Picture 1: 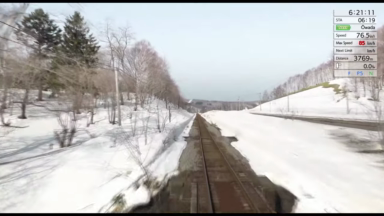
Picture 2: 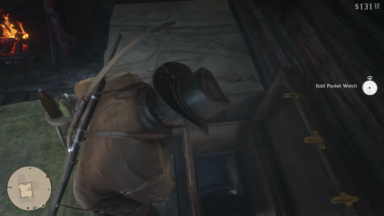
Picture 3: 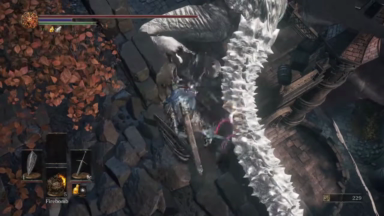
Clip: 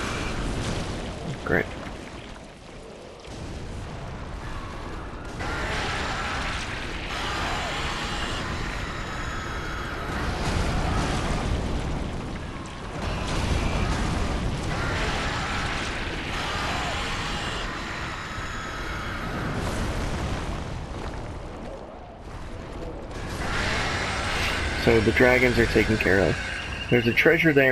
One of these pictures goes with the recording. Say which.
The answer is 3